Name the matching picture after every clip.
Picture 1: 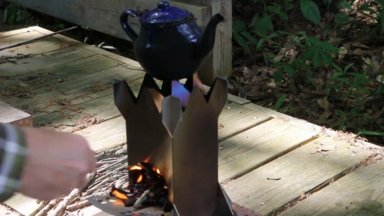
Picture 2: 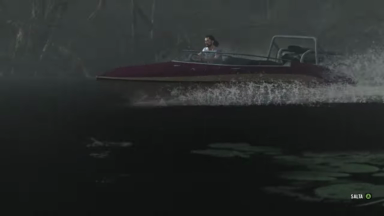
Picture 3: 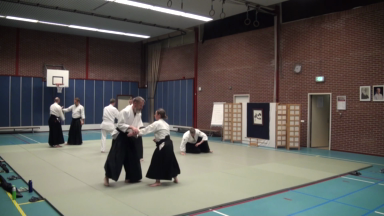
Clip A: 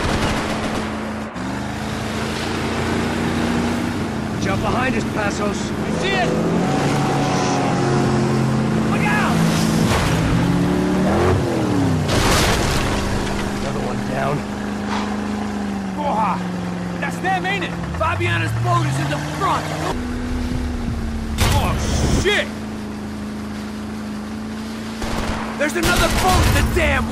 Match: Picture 2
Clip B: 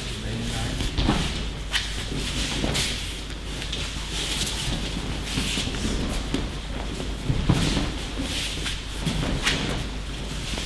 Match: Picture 3